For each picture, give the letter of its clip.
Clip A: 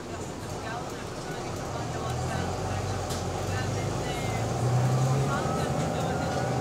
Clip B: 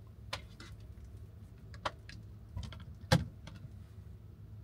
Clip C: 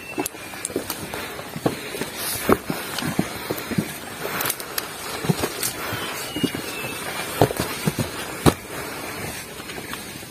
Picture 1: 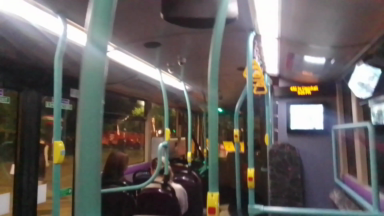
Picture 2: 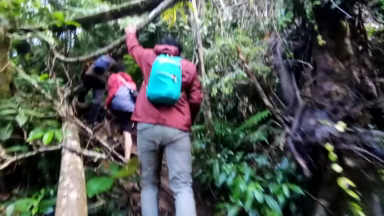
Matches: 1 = A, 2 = C